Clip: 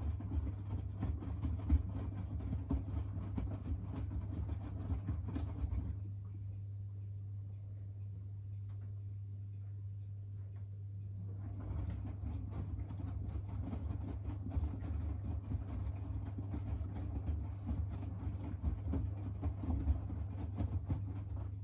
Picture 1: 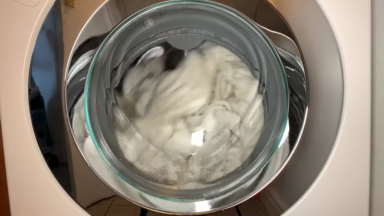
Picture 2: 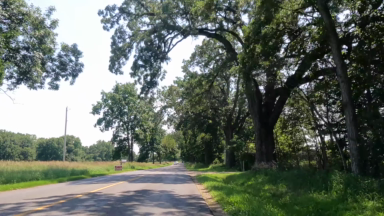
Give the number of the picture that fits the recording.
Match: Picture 1